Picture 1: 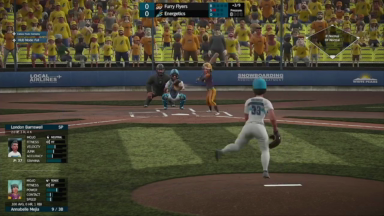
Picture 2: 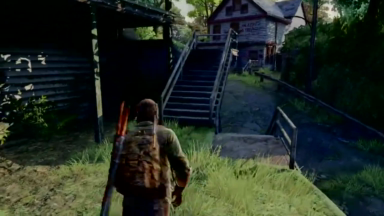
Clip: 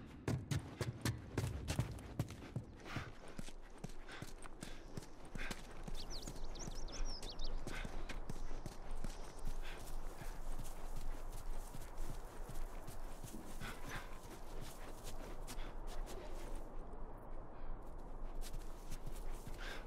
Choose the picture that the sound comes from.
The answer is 2